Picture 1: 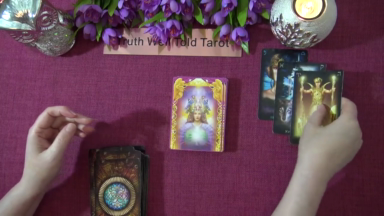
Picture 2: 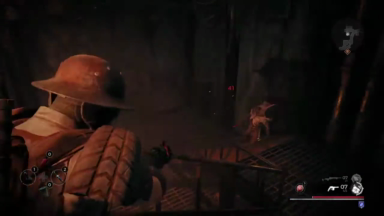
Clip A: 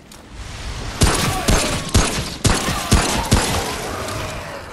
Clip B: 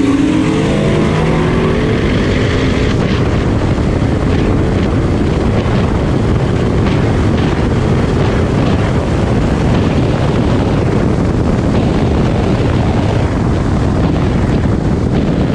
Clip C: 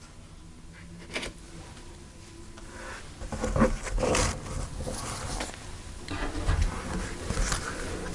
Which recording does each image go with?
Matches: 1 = C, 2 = A